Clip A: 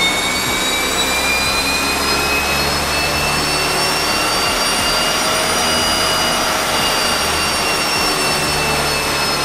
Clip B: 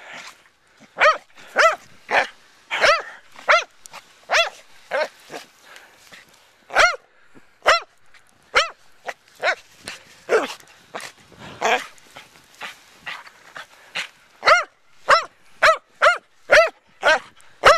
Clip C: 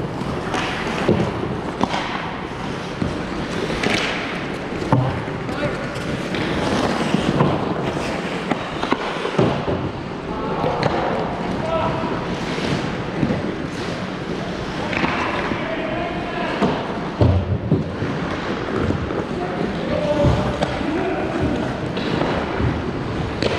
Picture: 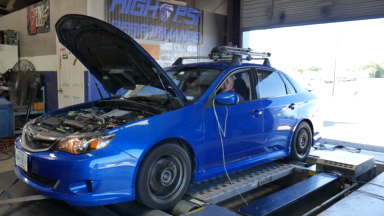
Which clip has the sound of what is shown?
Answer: A